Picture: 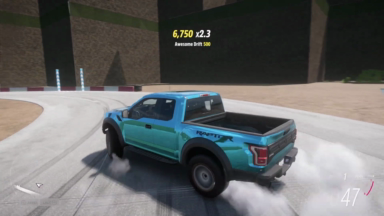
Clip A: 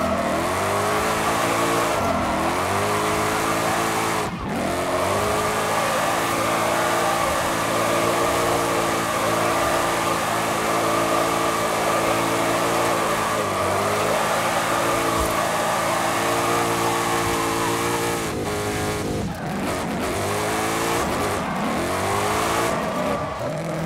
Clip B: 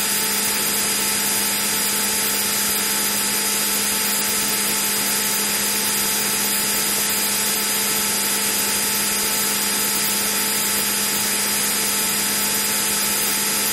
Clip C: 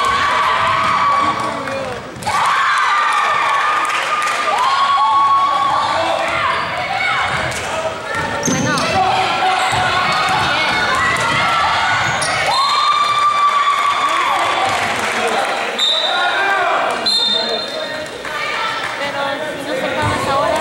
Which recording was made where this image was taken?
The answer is A